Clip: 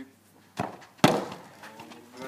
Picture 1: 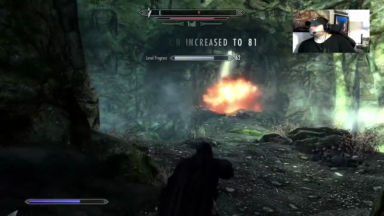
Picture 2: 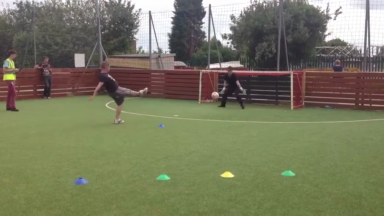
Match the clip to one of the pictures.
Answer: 2